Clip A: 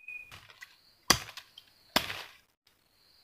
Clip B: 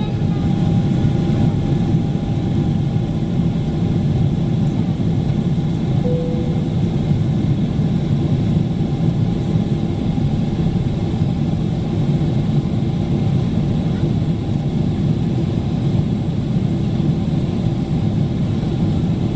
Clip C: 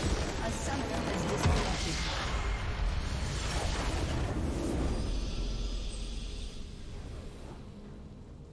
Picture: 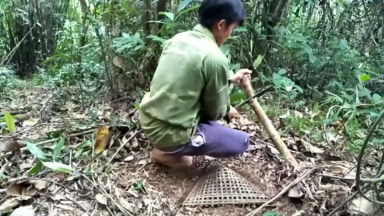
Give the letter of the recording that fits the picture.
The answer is A